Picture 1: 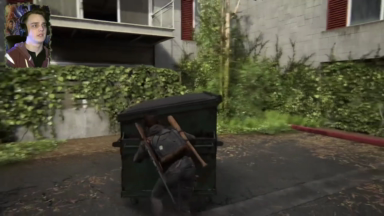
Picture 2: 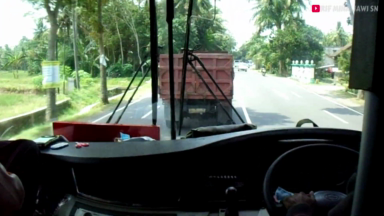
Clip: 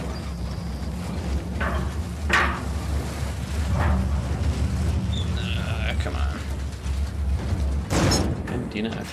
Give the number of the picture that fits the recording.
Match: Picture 1